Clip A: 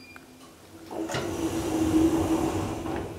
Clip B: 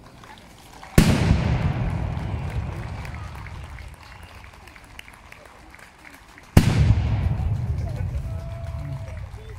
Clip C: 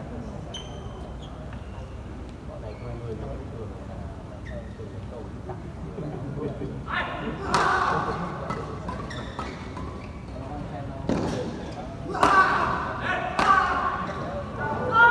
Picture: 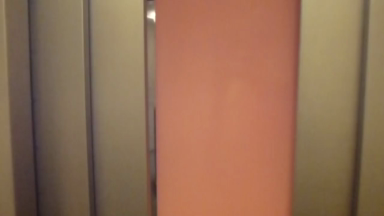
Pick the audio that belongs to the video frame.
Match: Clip A